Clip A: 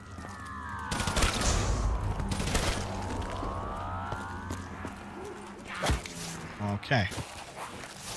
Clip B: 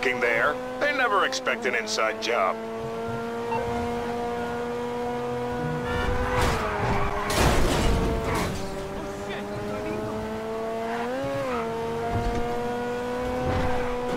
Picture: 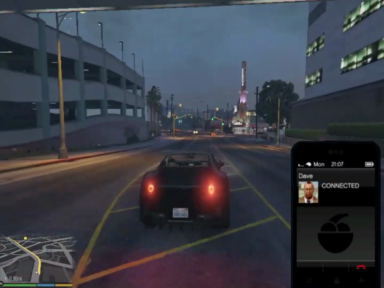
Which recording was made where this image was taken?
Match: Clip B